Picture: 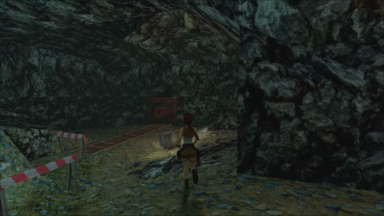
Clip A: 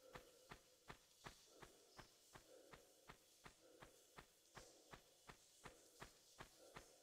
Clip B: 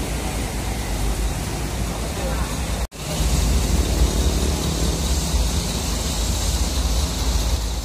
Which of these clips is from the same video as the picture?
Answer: A